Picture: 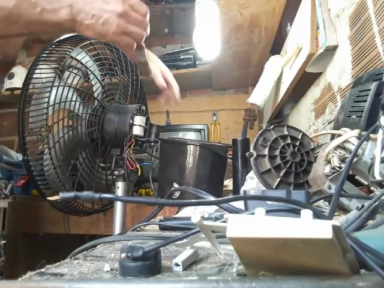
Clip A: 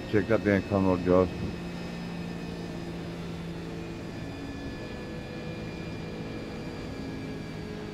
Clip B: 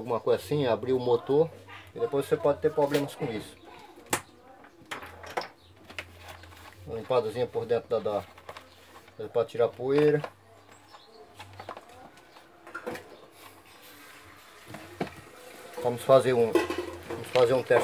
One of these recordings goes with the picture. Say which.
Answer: B